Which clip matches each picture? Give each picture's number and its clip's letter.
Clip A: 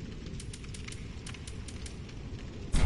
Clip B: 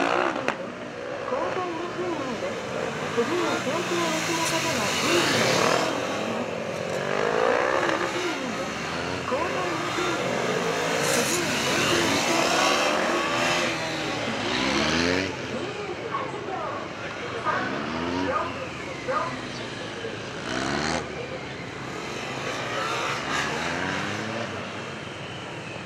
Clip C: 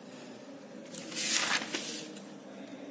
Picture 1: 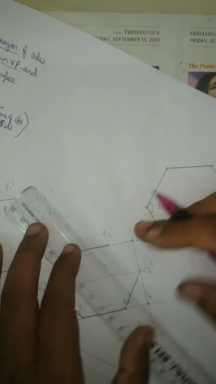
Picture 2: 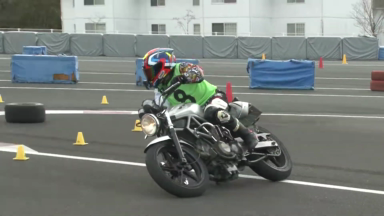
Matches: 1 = C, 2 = B